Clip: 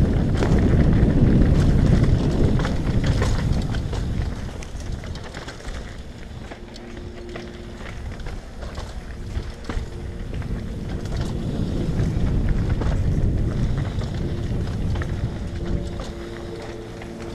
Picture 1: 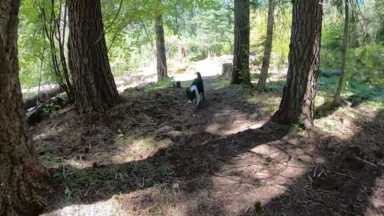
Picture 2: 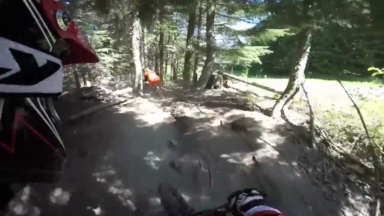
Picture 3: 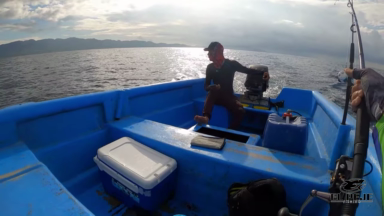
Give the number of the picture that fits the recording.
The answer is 2